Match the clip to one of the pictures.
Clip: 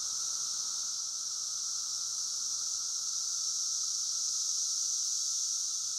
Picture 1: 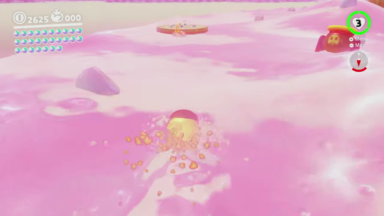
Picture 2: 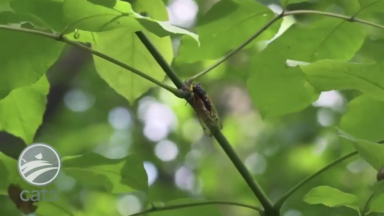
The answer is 2